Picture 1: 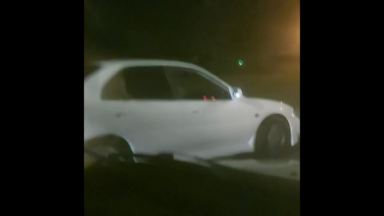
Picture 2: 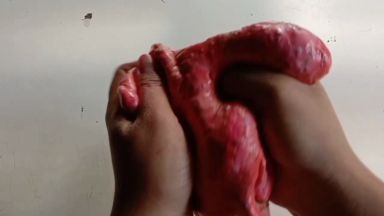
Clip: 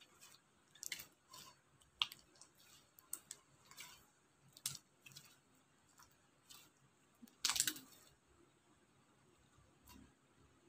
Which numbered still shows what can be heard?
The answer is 2